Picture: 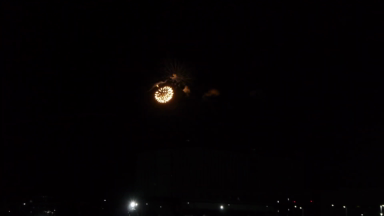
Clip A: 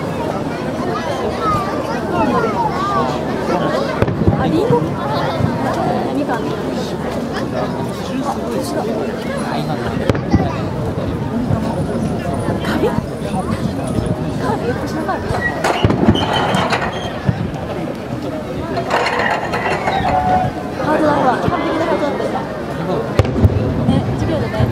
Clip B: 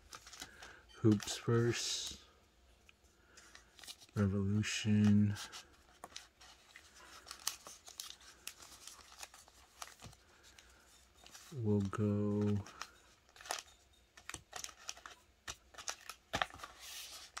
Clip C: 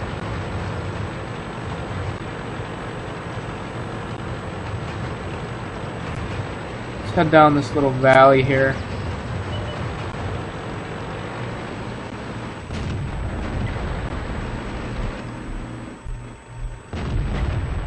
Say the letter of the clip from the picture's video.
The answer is A